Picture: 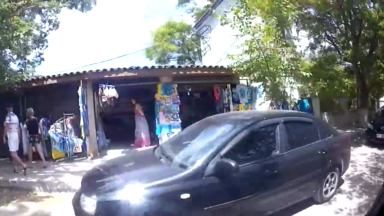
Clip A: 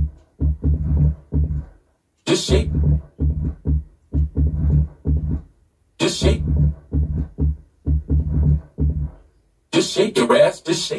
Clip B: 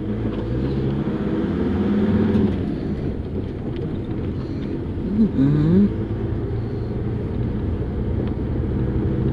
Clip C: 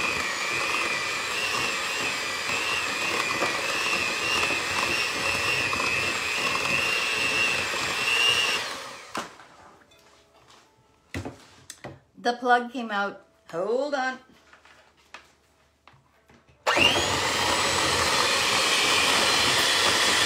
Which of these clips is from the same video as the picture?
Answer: B